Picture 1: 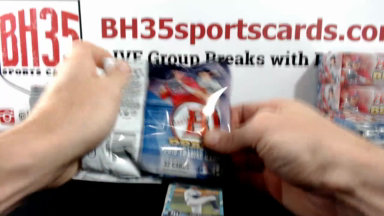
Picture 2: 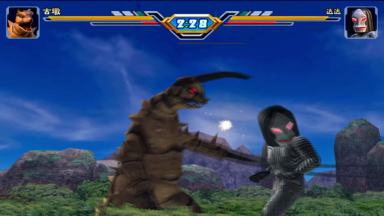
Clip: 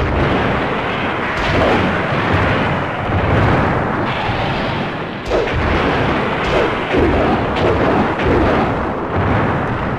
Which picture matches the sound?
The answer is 2